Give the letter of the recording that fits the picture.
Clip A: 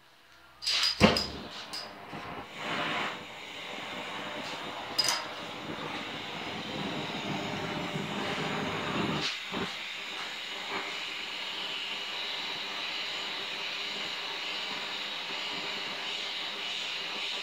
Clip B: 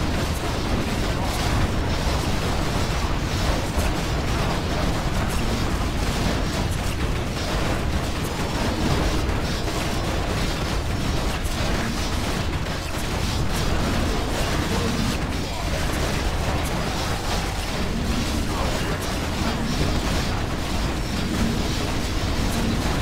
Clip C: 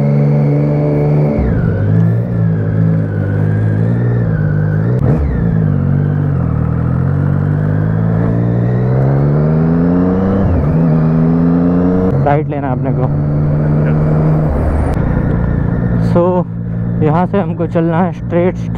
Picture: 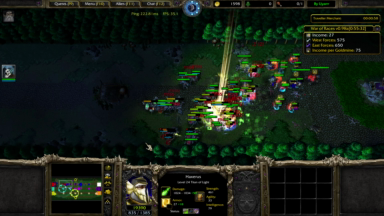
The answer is B